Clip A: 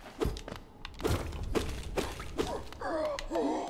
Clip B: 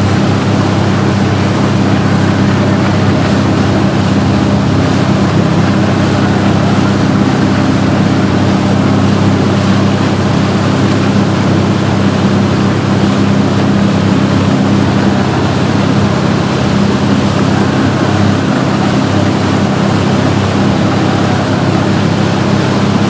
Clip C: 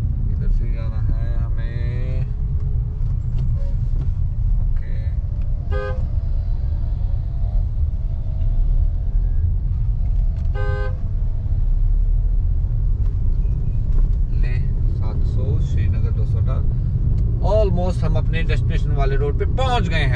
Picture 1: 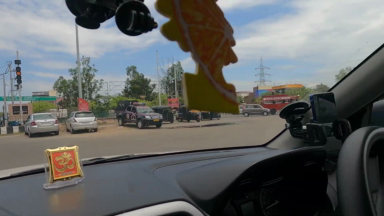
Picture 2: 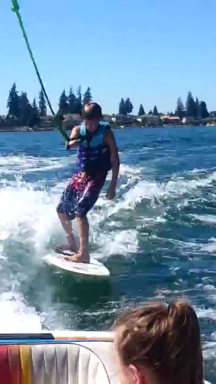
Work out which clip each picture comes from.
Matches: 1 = C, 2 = B